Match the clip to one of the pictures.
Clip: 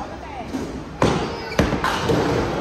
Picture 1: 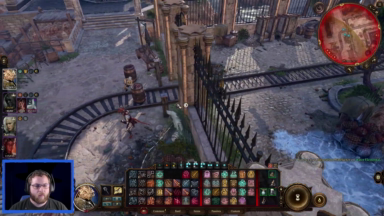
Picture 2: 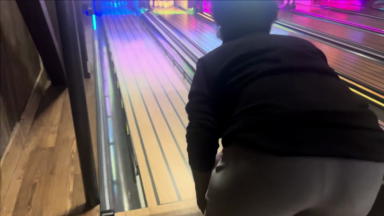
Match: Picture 2